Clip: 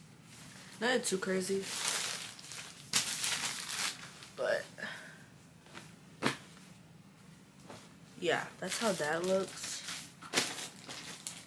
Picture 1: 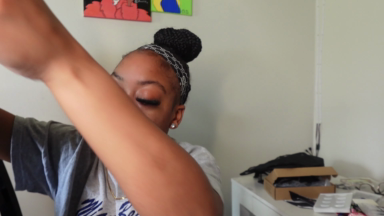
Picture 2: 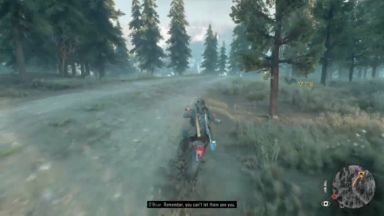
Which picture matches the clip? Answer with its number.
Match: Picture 1